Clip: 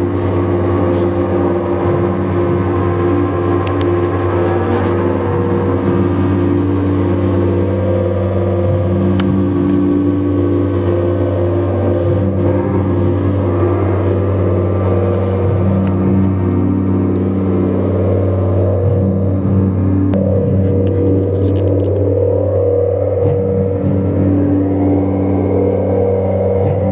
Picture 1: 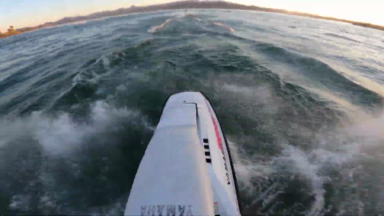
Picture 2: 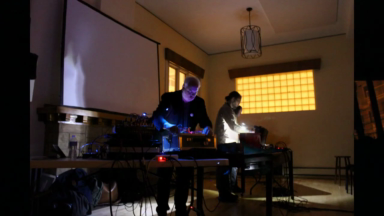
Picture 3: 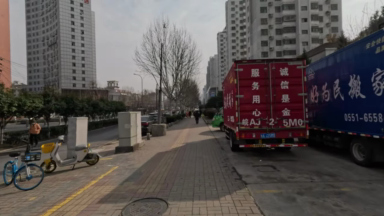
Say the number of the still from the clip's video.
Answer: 2